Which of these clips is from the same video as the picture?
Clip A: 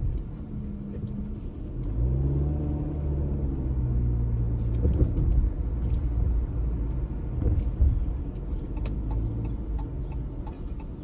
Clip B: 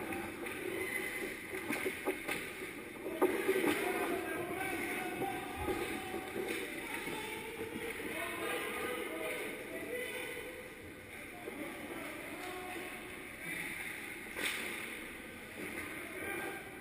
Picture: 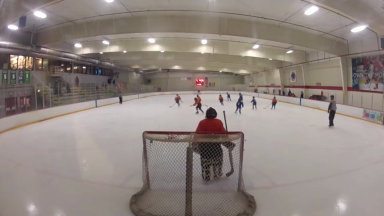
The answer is B